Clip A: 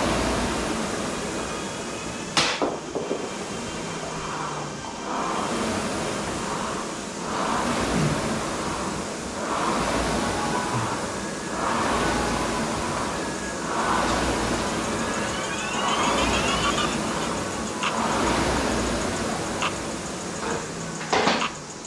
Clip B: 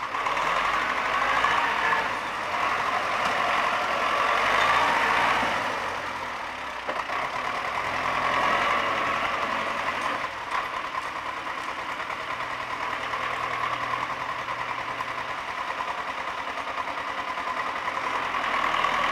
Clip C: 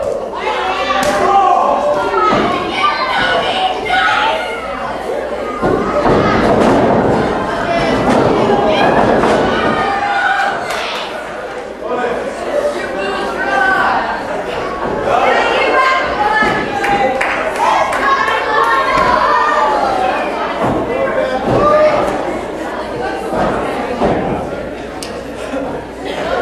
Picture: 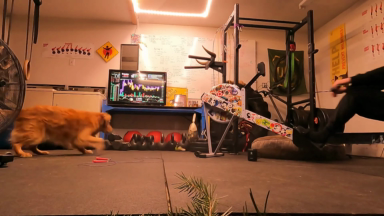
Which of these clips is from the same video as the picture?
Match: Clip A